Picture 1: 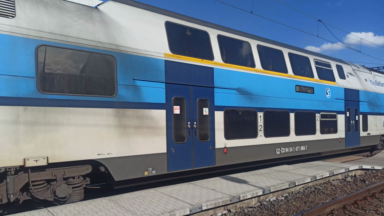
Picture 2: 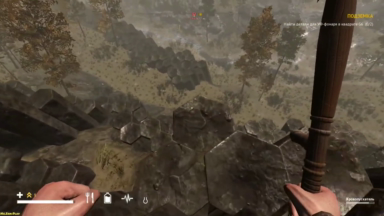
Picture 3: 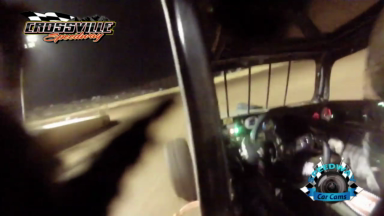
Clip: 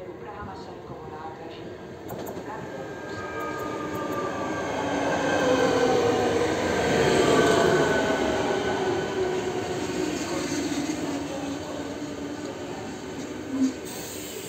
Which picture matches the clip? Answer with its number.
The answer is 1